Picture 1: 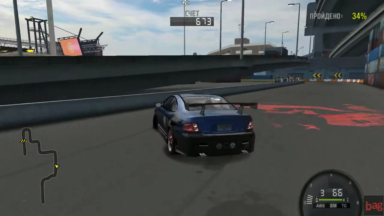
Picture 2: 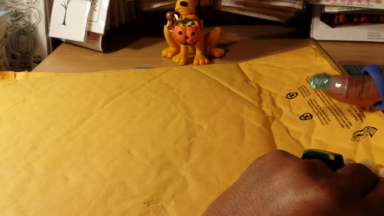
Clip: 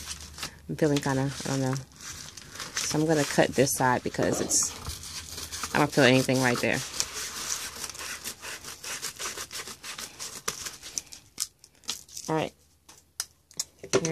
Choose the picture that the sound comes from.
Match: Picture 2